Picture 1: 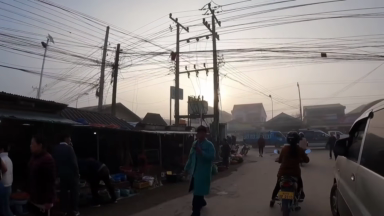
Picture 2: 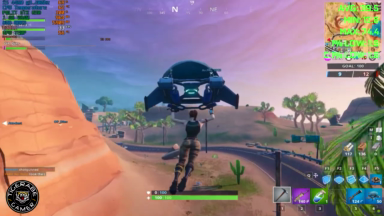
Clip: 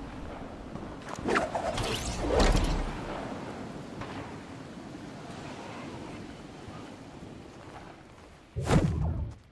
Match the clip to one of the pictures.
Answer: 2